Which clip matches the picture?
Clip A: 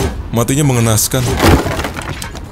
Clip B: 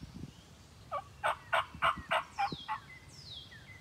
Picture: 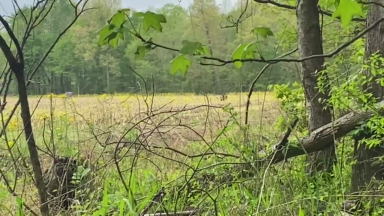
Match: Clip B